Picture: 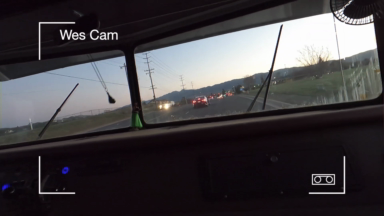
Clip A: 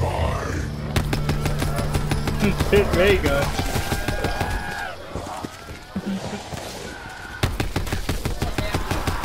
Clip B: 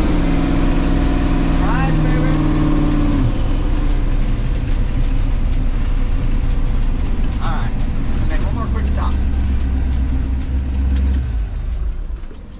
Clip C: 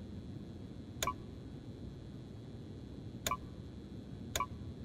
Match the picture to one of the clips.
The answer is B